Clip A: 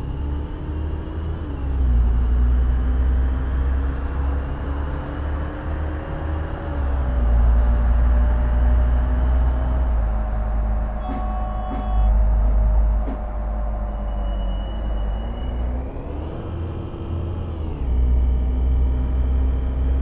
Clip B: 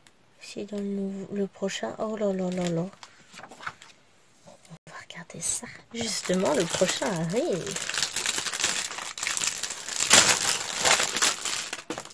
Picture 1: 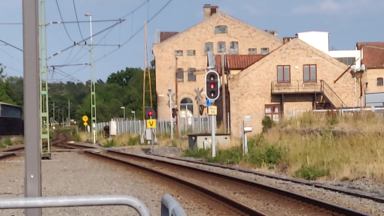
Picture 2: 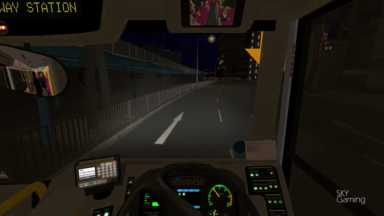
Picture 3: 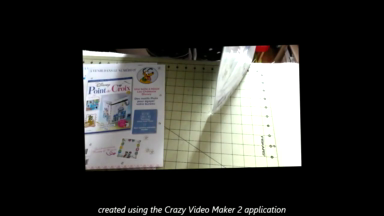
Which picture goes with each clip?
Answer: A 2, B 3